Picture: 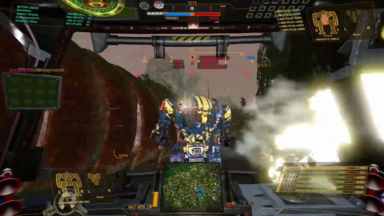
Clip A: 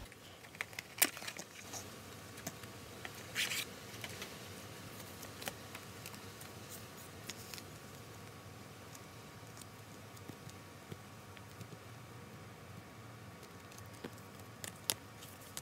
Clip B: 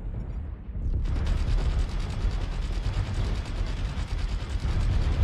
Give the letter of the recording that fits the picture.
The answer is B